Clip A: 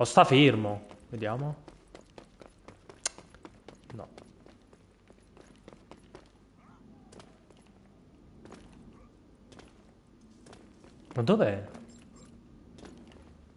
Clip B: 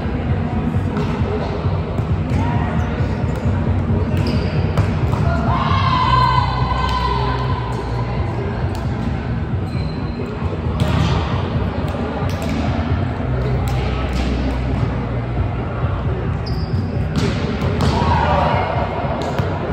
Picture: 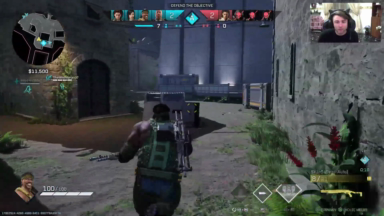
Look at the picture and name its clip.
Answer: A